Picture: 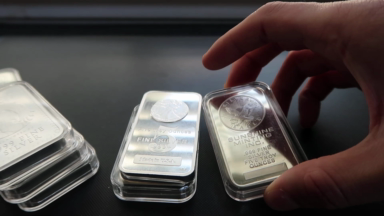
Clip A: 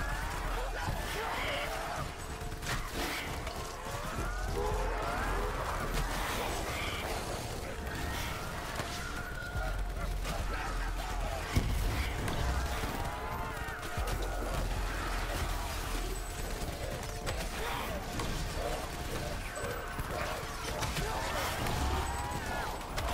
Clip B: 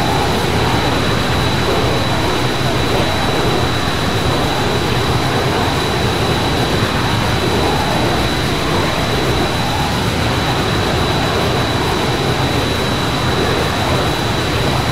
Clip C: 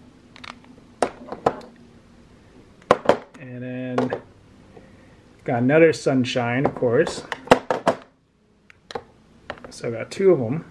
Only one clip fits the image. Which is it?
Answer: C